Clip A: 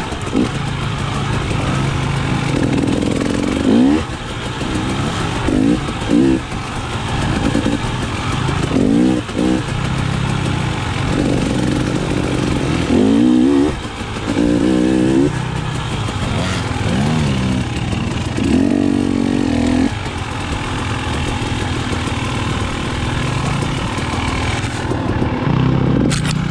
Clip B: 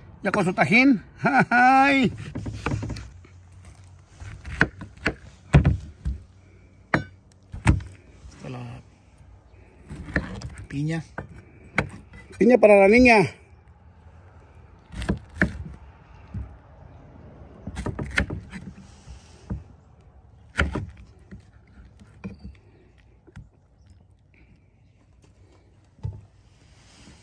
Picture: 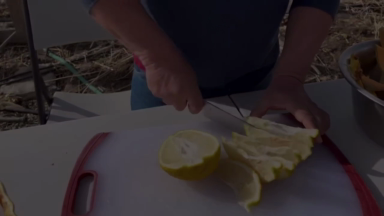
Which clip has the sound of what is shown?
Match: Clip B